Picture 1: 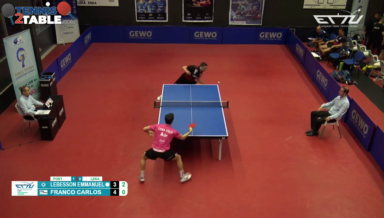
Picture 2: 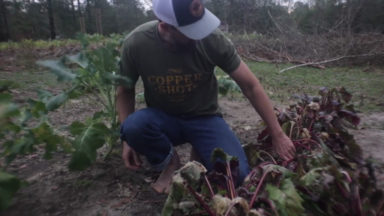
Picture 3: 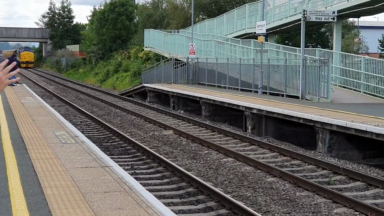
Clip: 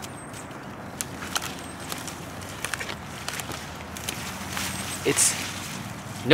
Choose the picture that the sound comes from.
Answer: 2